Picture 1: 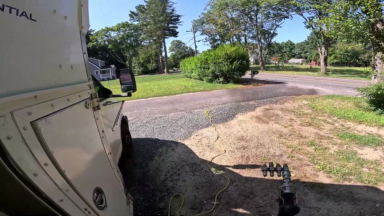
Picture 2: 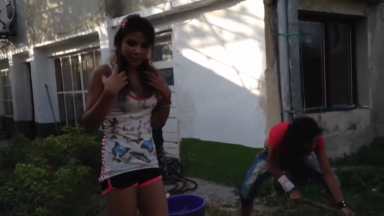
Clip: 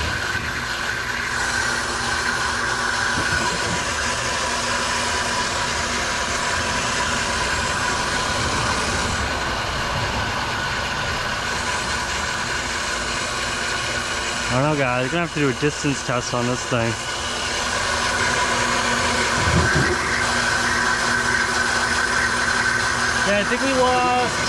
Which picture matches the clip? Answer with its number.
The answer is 1